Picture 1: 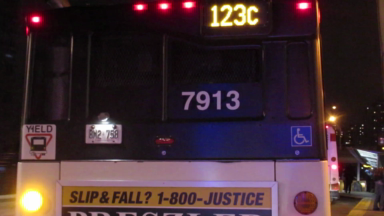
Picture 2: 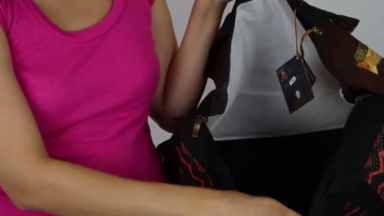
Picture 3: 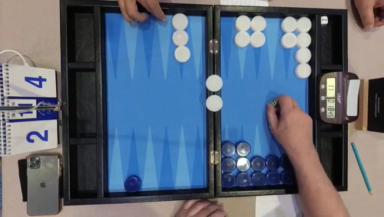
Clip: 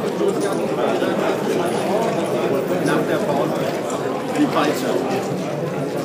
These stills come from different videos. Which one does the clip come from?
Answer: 3